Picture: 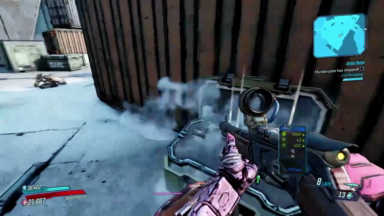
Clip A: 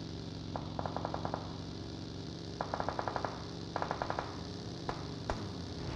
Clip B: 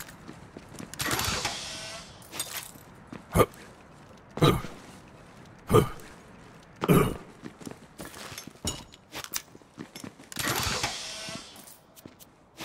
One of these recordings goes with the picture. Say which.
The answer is B